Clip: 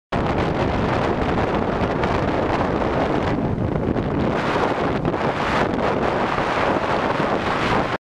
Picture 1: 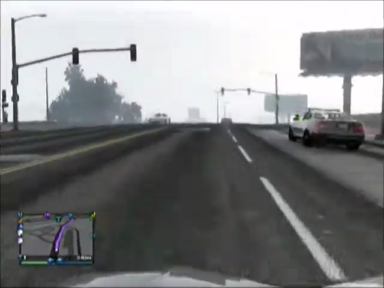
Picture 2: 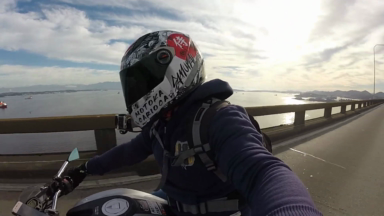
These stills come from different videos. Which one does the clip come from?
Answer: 2